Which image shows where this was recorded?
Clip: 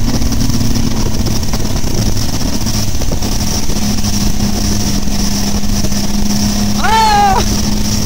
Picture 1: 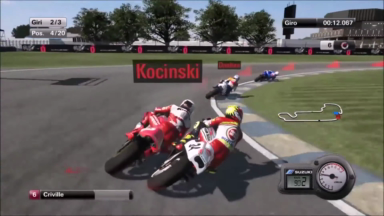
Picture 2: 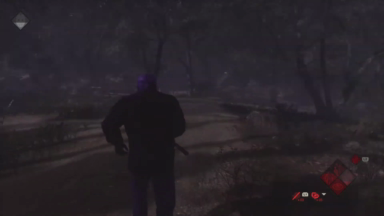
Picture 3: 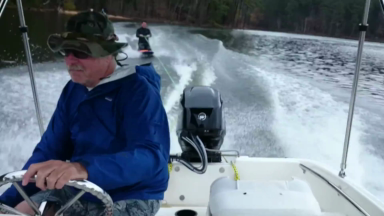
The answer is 3